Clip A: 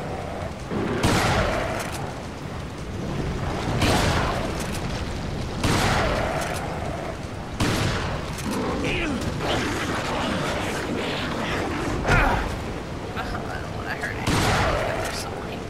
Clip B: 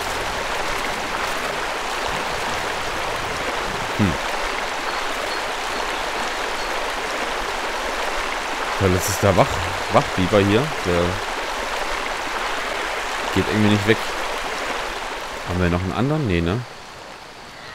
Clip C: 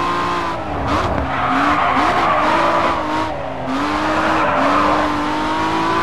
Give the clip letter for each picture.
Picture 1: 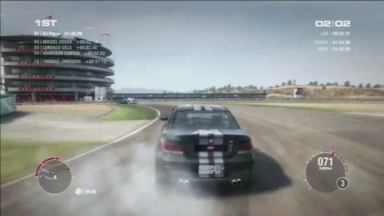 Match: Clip C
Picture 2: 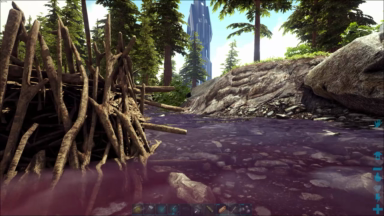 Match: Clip B